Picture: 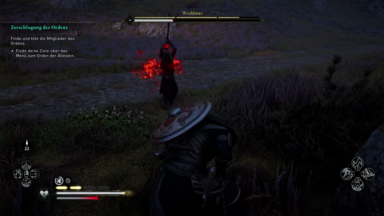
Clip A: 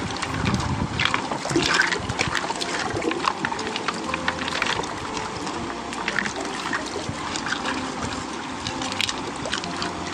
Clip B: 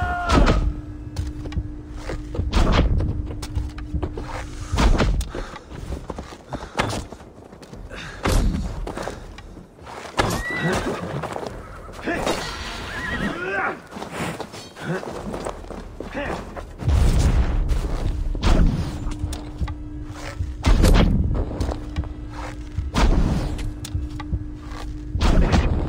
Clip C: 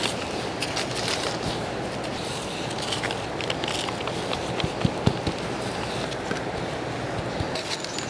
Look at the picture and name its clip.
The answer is B